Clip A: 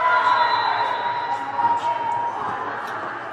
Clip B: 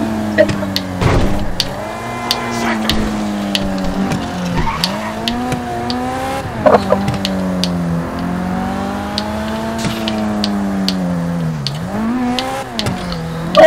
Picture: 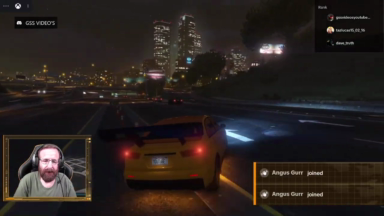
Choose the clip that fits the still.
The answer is B